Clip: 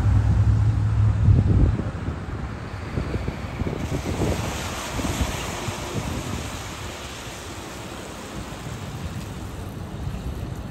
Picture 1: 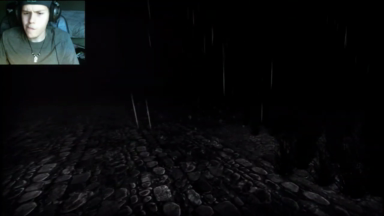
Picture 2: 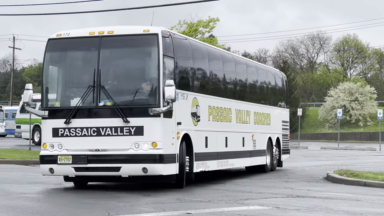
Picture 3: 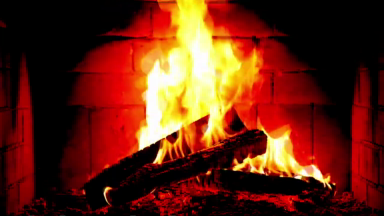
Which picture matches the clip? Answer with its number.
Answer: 2